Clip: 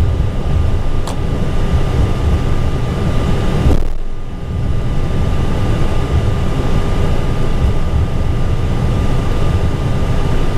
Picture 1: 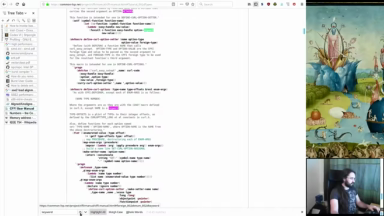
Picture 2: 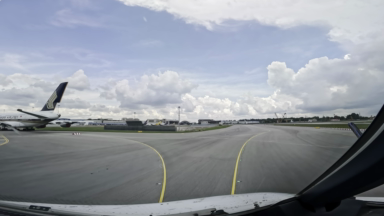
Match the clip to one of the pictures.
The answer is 2